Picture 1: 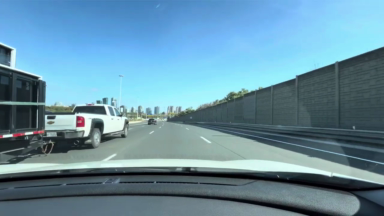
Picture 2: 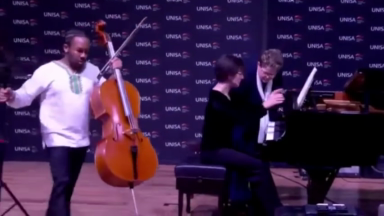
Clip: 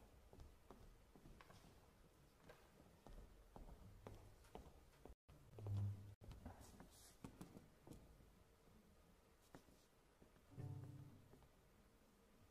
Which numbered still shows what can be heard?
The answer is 2